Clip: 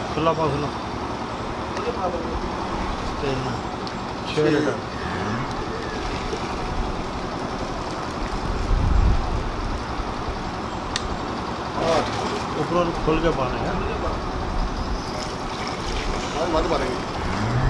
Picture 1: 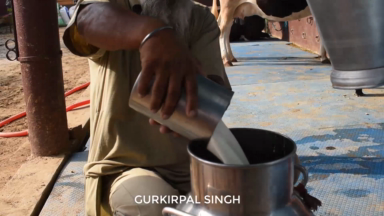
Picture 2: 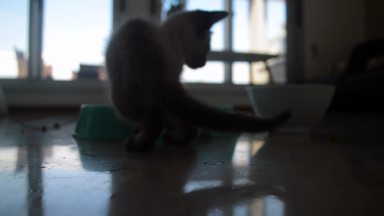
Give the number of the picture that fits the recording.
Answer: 1